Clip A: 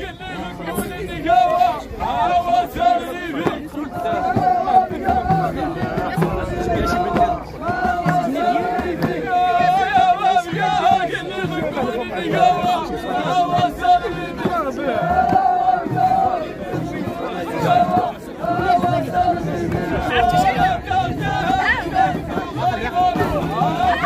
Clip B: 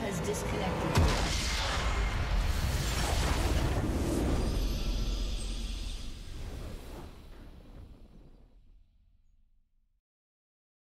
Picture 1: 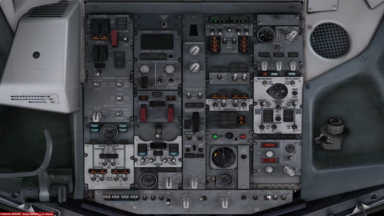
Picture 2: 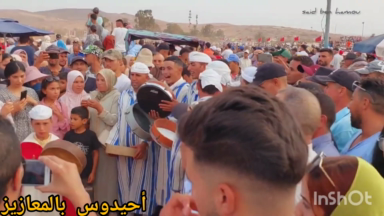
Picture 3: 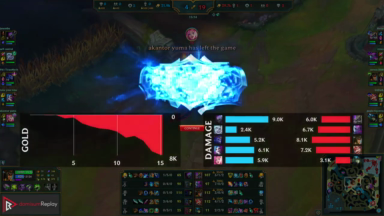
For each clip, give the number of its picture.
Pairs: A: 2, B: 3